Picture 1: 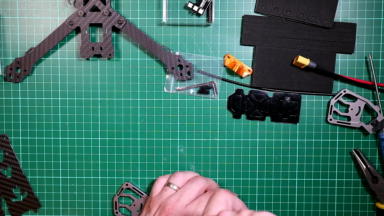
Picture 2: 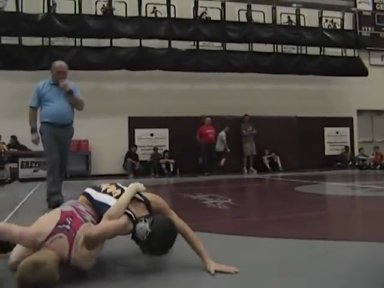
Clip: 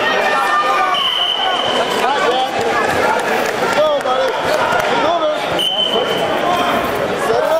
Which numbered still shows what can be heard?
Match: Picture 2